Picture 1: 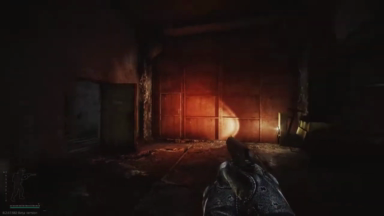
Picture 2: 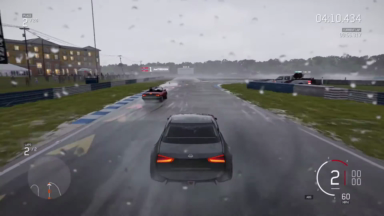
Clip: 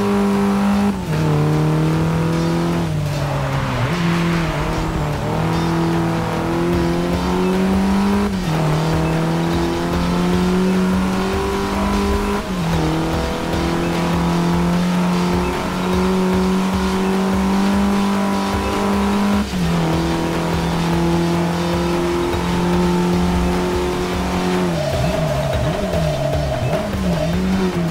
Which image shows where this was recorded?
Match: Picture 2